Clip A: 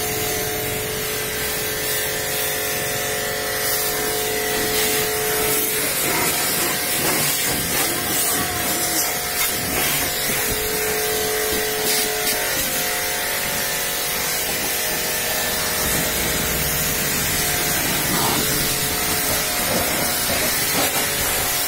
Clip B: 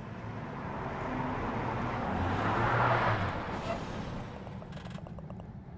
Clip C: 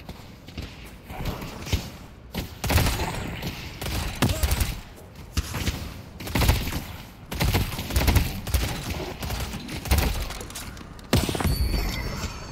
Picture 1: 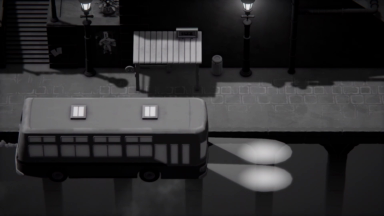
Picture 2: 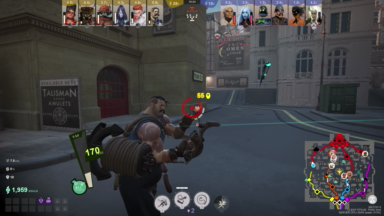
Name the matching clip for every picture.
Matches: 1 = B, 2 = C